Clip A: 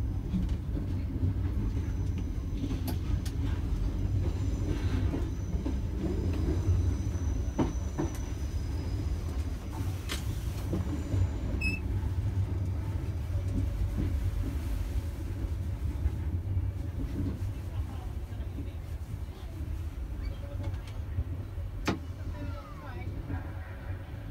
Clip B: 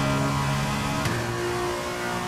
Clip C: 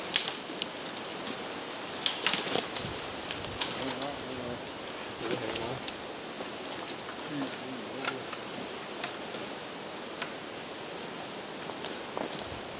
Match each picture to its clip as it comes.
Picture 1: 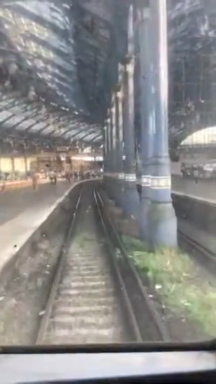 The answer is A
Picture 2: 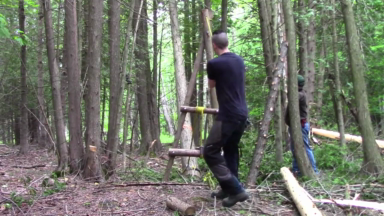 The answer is C